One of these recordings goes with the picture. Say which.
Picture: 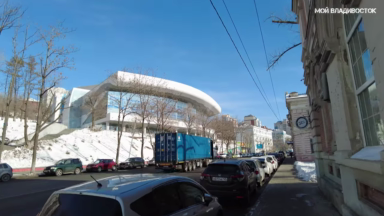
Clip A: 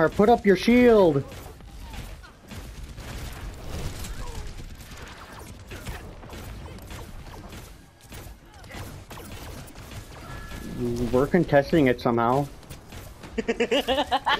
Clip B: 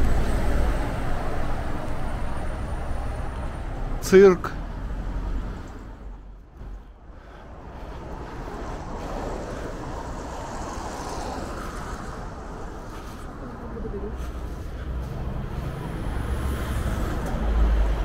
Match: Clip B